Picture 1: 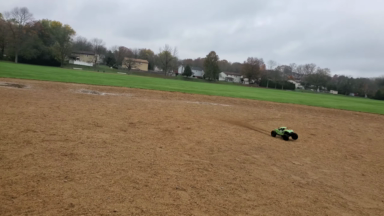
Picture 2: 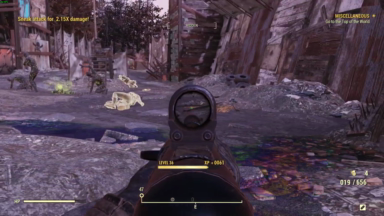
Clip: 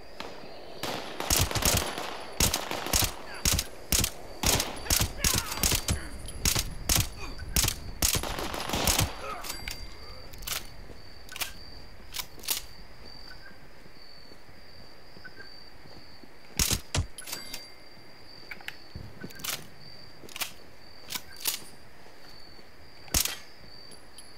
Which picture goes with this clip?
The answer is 2